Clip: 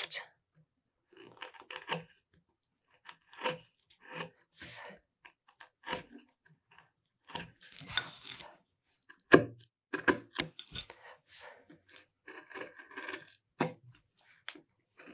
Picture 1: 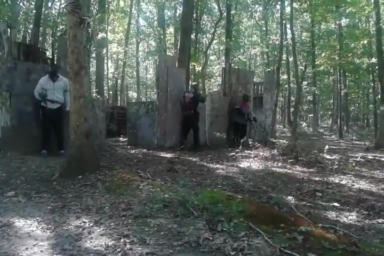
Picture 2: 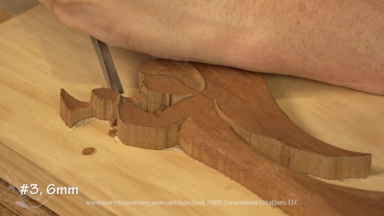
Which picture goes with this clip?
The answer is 2